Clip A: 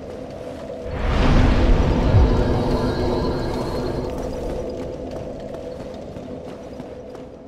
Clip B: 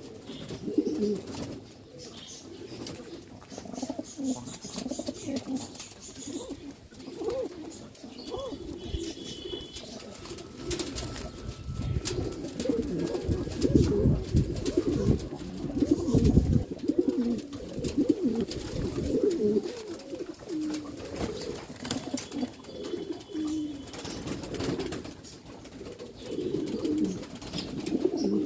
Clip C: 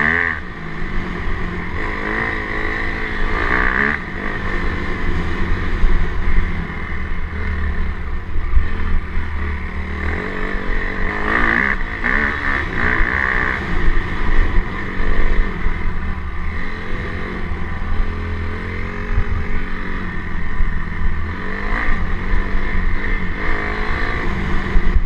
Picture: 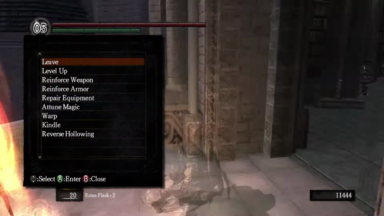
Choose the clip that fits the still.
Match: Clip A